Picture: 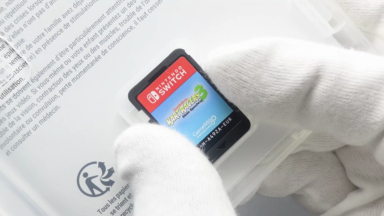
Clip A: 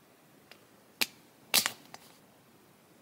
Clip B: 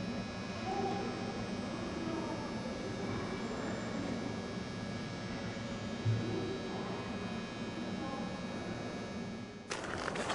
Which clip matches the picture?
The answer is A